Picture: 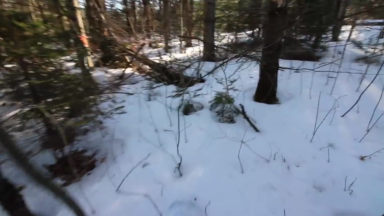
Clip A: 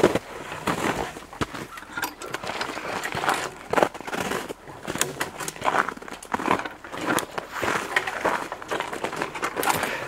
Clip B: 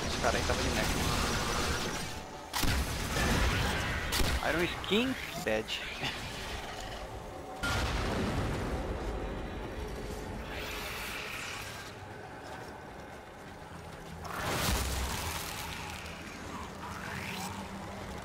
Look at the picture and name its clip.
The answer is A